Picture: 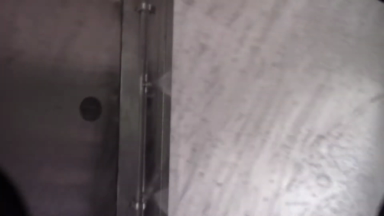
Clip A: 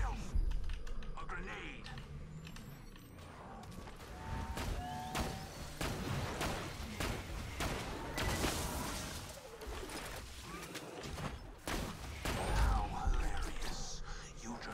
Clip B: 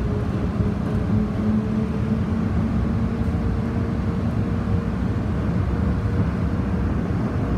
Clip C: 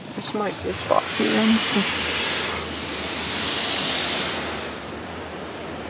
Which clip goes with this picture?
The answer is C